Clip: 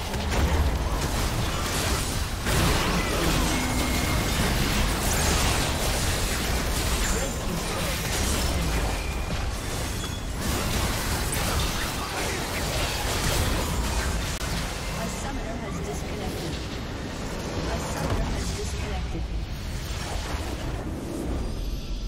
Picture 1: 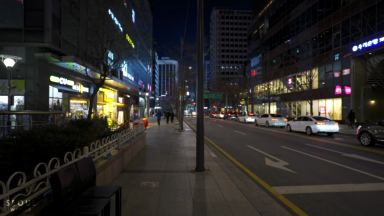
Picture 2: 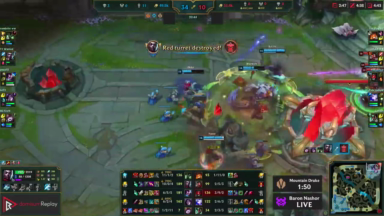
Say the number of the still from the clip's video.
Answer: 2